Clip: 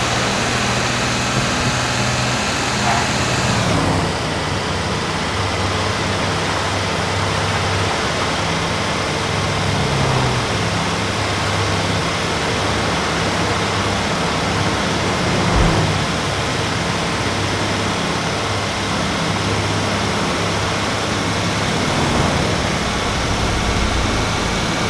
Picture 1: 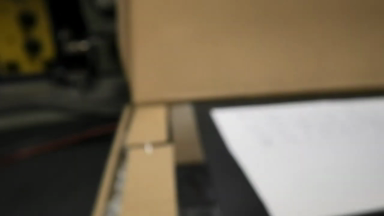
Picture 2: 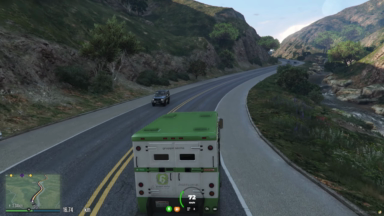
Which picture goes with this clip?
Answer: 2